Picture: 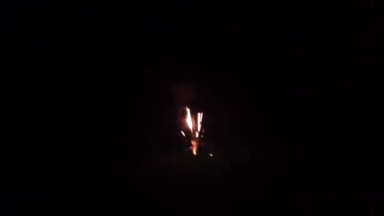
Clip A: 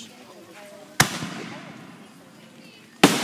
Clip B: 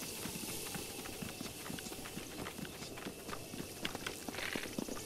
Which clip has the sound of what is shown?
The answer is A